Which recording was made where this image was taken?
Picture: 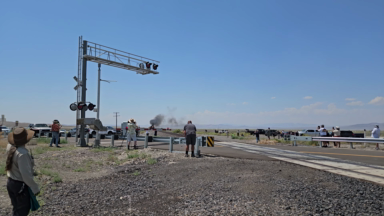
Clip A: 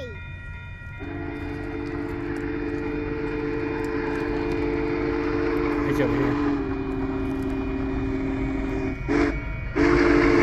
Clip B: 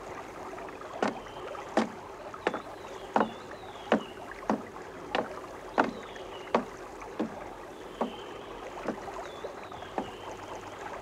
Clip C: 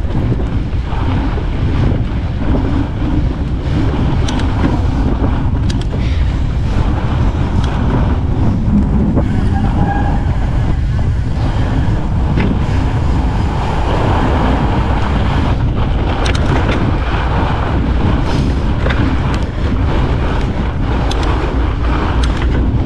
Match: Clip A